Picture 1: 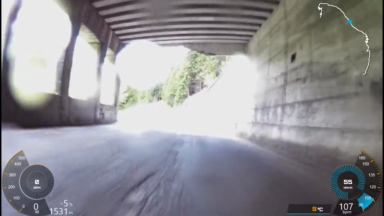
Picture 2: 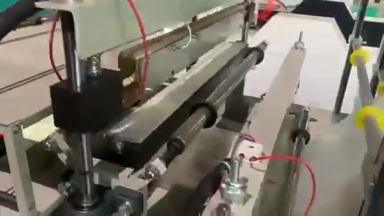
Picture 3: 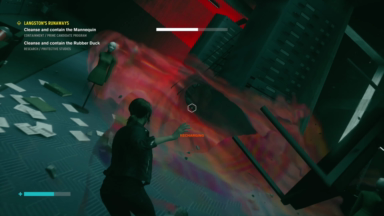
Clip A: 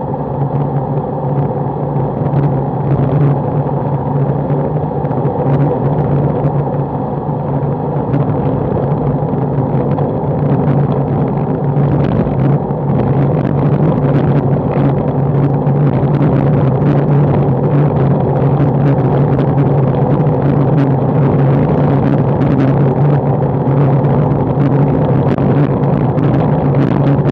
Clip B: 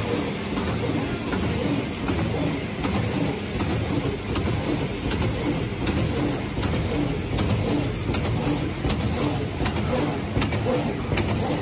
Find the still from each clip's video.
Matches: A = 1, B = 2